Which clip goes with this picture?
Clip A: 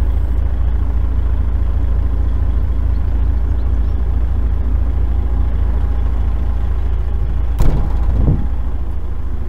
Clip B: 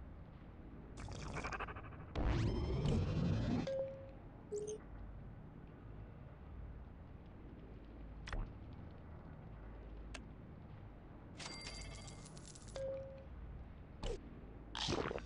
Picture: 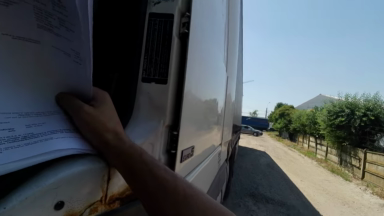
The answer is A